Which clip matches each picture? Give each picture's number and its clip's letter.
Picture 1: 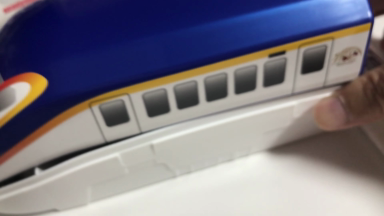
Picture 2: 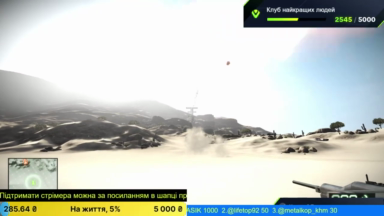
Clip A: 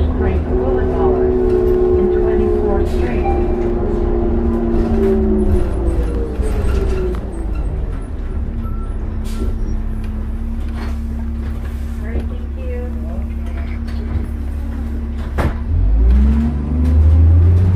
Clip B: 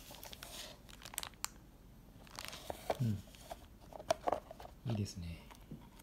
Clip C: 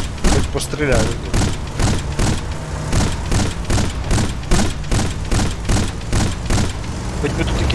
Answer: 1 B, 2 C